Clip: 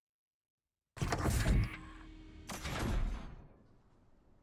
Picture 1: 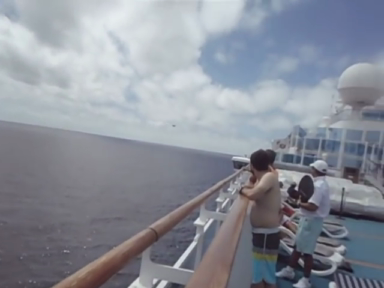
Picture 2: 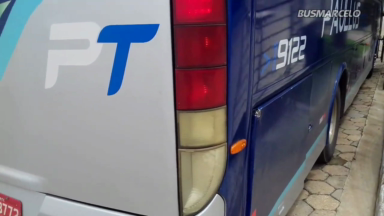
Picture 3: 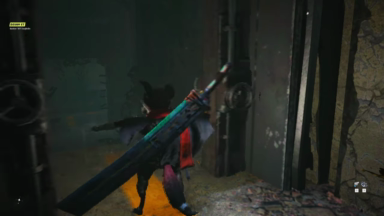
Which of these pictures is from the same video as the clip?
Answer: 3